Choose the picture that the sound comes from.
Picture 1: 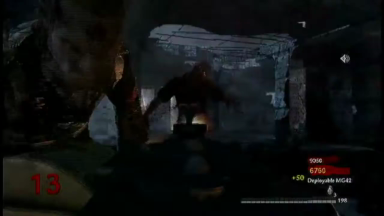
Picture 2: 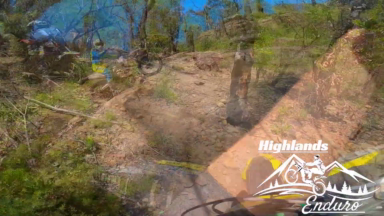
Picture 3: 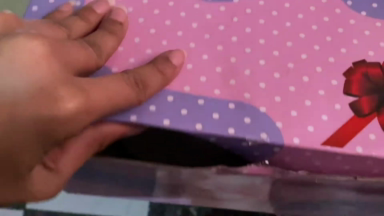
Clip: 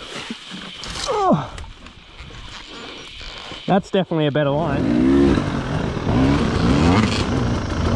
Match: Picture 2